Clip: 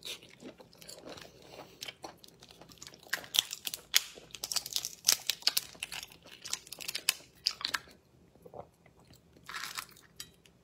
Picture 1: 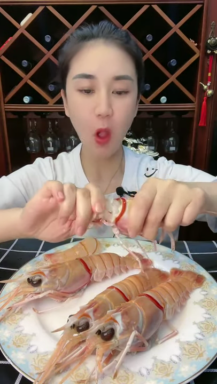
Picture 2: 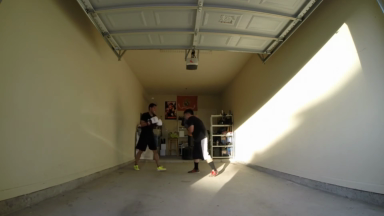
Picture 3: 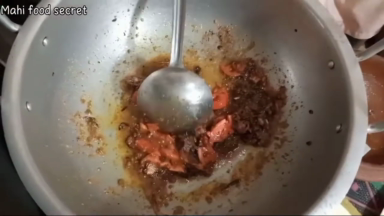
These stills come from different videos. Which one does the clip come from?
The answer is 1